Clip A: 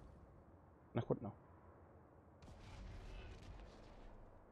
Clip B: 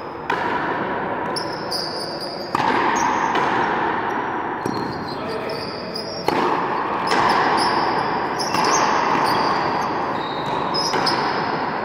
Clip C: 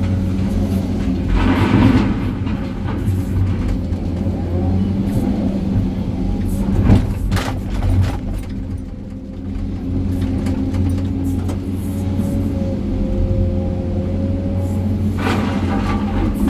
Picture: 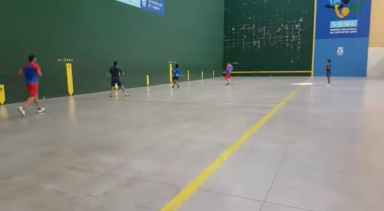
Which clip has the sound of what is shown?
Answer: B